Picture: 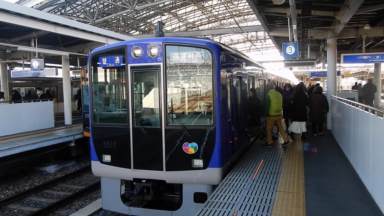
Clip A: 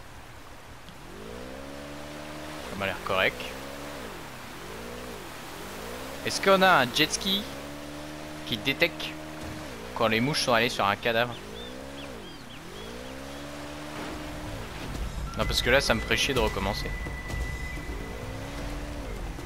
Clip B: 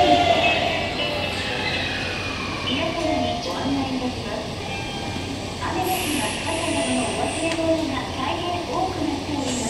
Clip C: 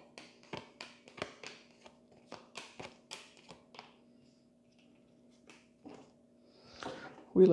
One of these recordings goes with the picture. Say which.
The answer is B